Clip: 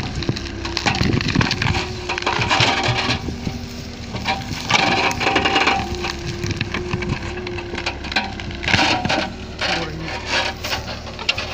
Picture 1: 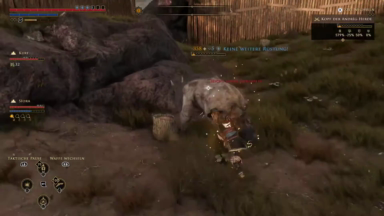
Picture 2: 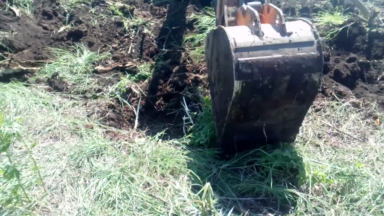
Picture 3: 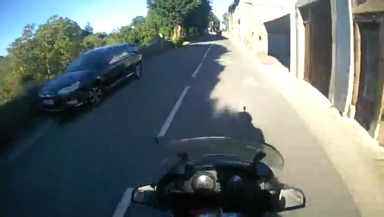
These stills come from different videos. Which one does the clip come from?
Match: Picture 2